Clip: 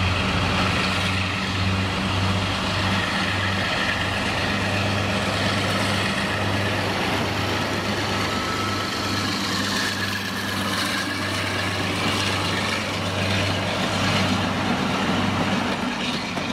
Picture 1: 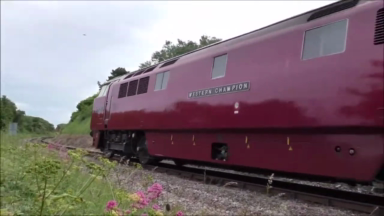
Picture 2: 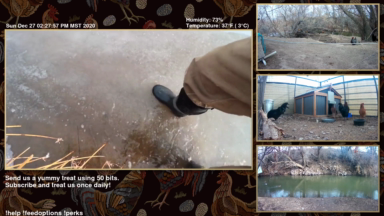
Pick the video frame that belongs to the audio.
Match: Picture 1